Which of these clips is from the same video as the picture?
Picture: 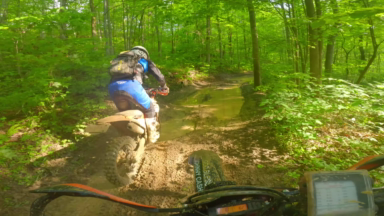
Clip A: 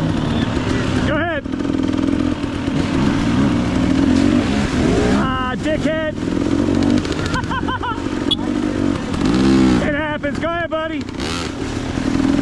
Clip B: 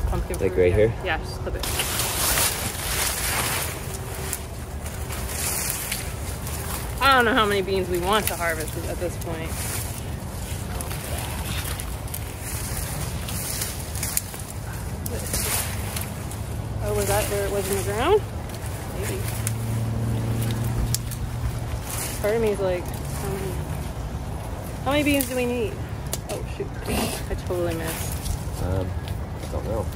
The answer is A